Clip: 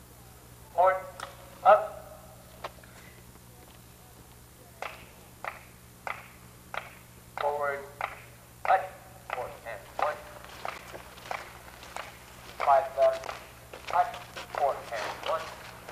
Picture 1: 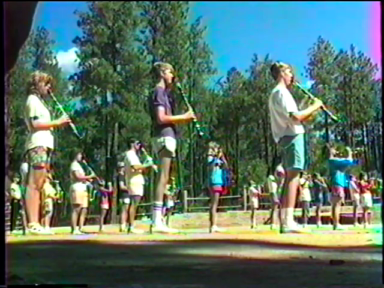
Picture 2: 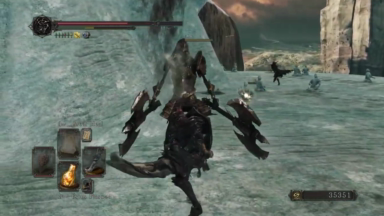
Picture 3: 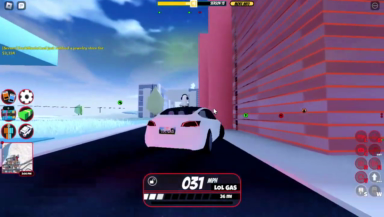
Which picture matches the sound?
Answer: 1